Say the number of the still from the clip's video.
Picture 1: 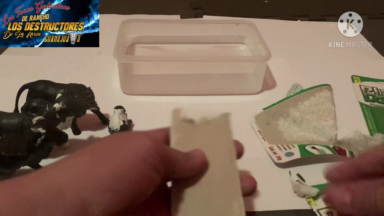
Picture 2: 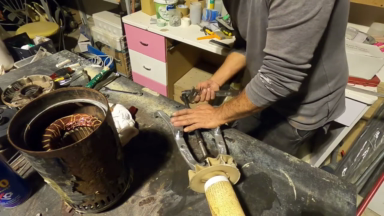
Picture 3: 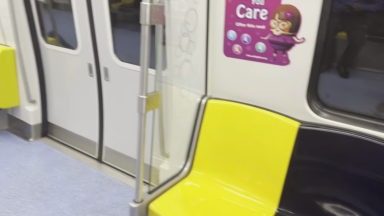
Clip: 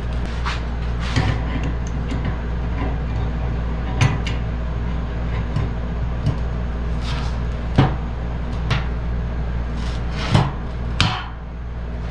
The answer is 2